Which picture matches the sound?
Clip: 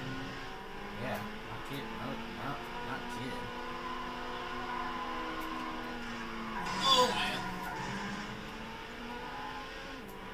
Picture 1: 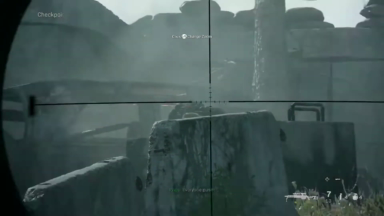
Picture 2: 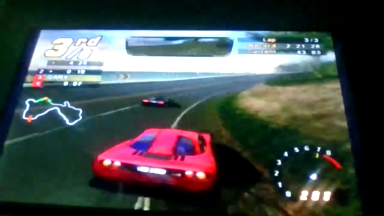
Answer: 2